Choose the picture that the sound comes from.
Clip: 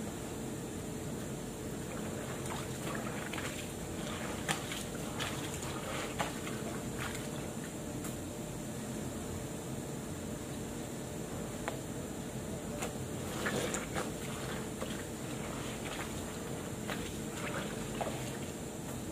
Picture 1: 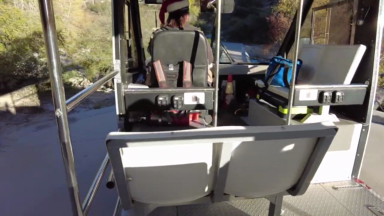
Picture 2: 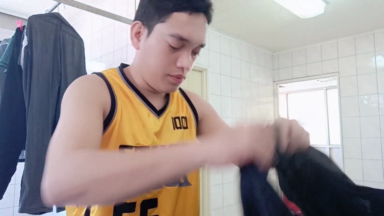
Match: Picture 2